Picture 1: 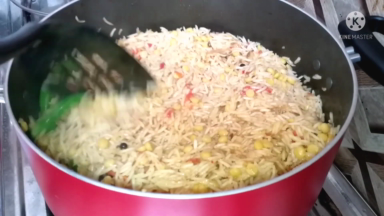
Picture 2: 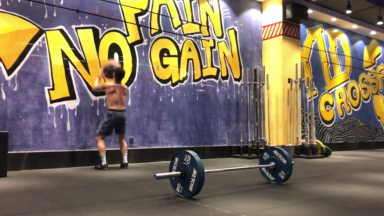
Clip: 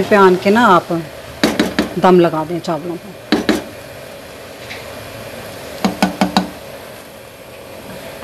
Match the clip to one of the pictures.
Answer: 1